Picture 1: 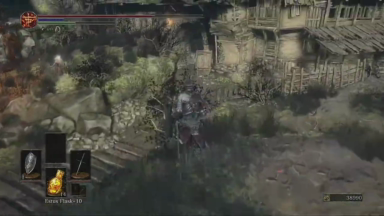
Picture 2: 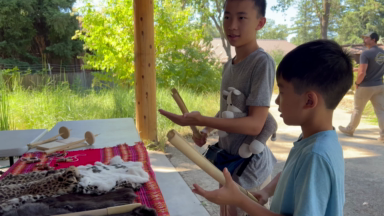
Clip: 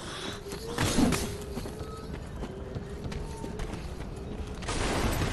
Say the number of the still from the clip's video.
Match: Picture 1